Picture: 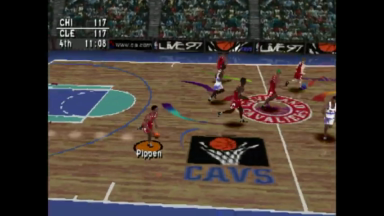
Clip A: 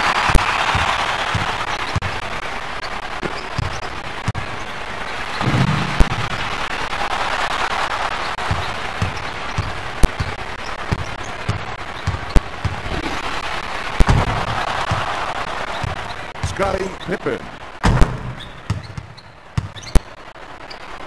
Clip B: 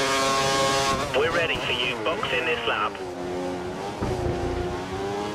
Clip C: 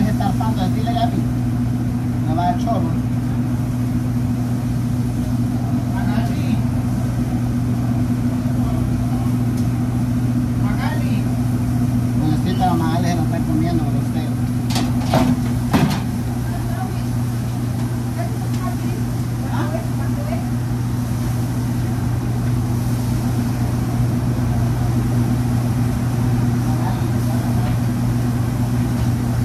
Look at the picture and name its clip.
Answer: A